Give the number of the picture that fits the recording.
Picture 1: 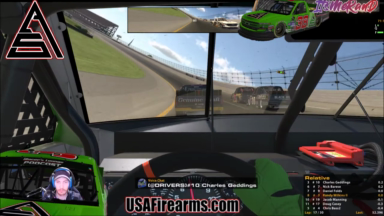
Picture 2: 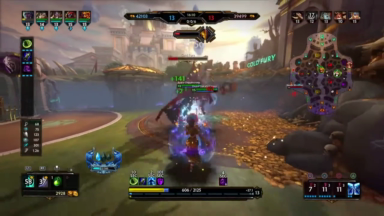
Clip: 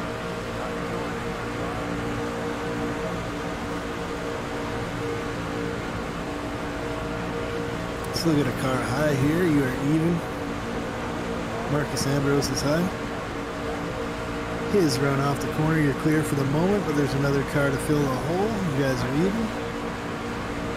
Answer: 1